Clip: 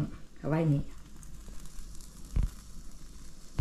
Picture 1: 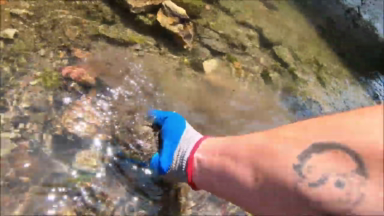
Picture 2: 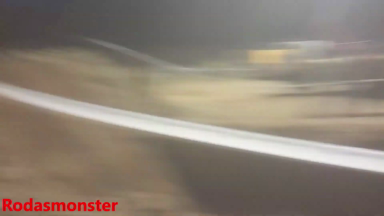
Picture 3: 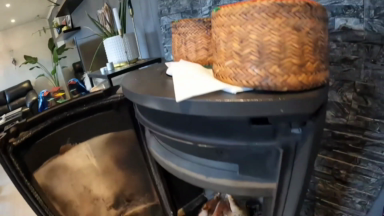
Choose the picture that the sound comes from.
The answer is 3